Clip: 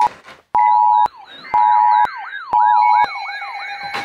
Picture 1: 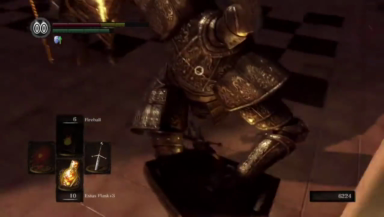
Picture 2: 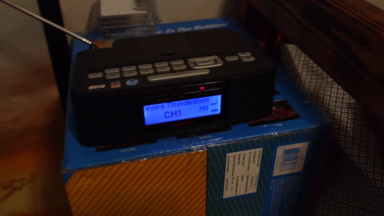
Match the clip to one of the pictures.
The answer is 2